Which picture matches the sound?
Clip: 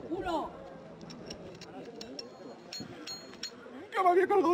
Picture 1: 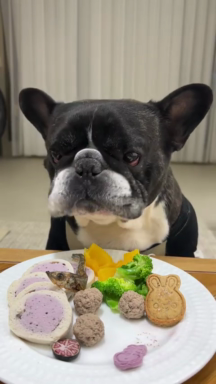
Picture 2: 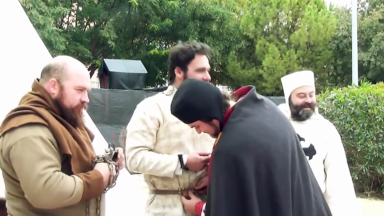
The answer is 2